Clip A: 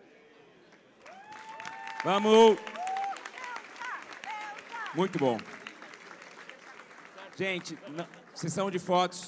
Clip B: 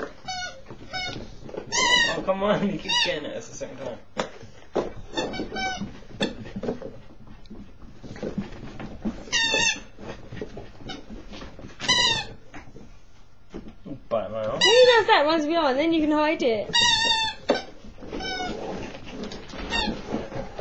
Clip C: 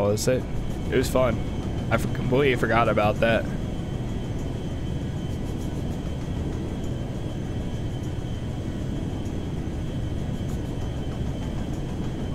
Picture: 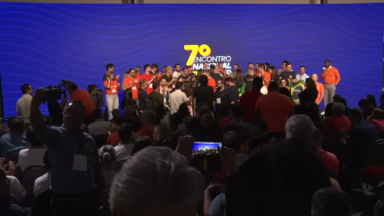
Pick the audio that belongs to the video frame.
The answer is A